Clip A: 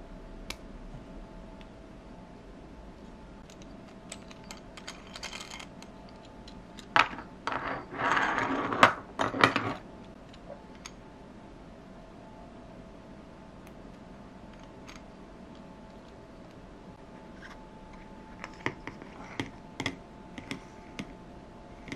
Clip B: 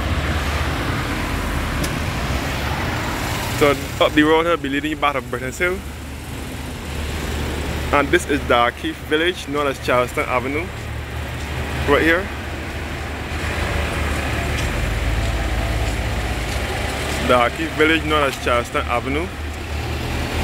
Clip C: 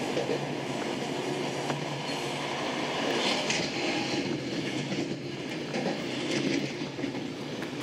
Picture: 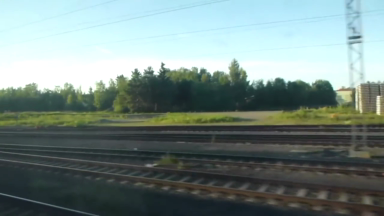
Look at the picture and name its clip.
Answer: C